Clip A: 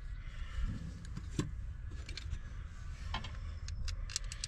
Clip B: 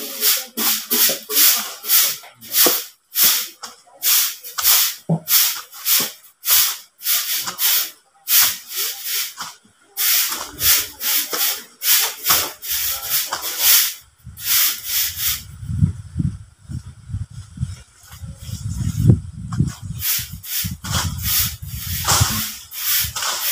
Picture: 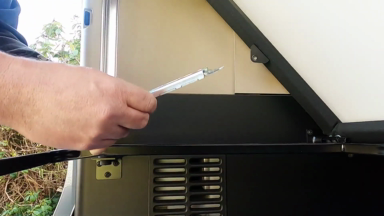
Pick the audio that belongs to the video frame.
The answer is A